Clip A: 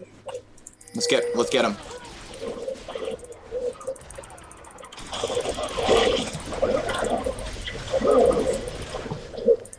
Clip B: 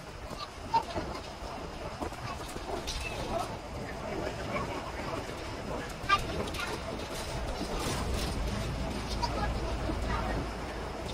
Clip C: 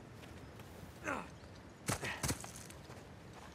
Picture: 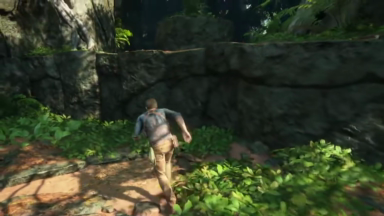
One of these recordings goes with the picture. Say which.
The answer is C